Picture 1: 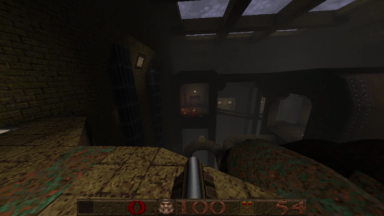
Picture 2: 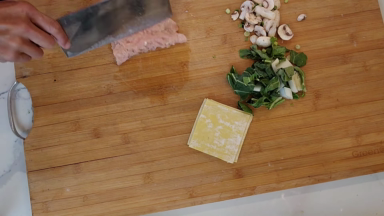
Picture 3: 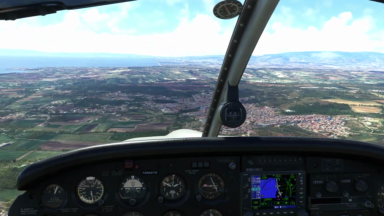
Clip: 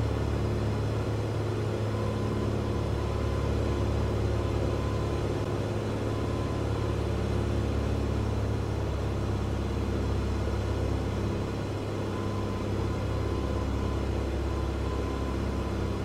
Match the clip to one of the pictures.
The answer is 3